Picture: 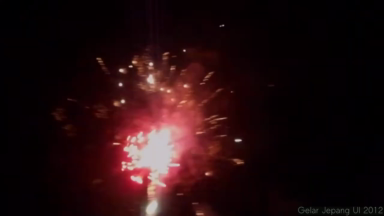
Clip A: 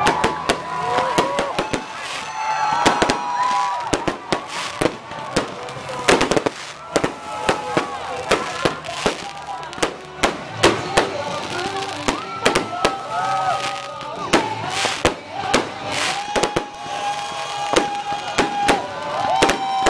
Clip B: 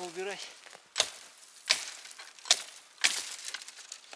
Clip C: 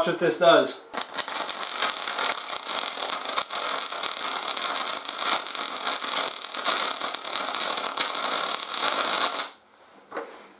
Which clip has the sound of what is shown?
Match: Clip A